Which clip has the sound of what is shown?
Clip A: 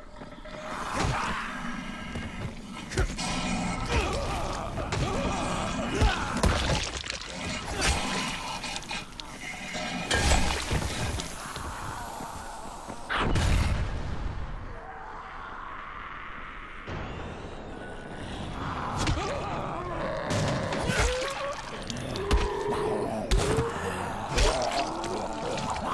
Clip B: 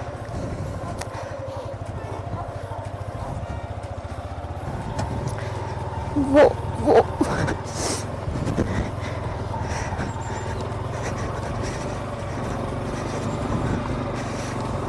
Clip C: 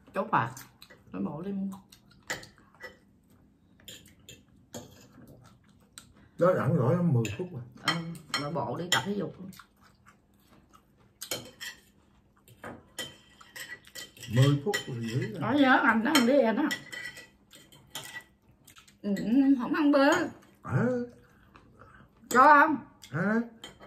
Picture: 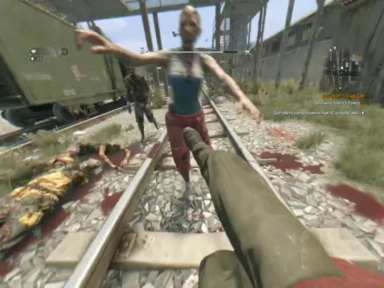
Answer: A